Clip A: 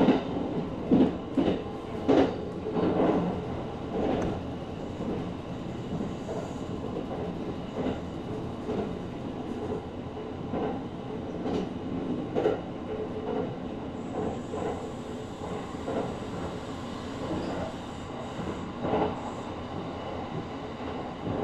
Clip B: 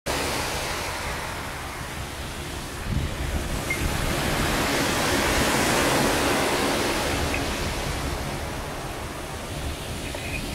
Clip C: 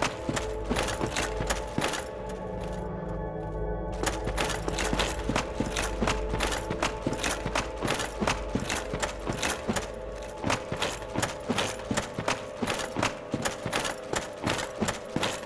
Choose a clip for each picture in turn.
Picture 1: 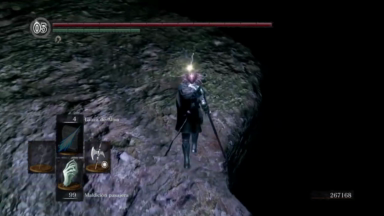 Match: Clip C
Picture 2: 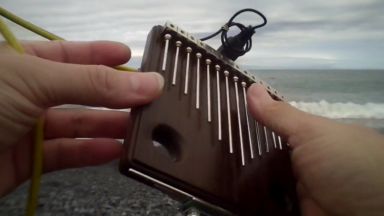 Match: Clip B